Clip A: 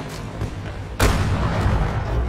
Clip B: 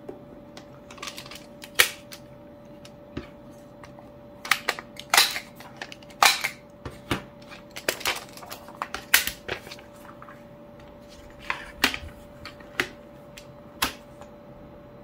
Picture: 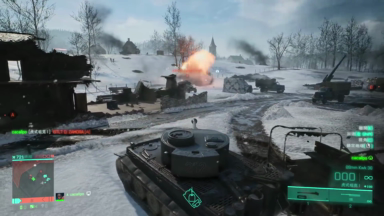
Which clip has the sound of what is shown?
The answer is A